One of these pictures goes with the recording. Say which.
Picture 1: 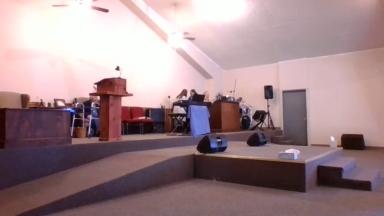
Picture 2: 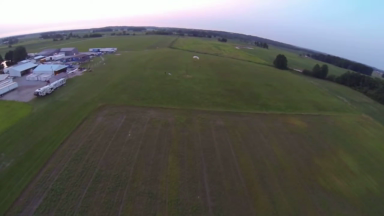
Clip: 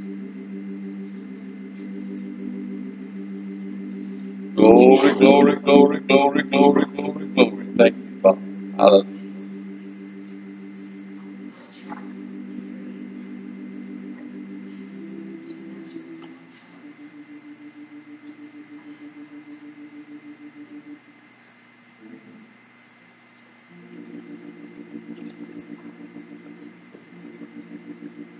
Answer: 1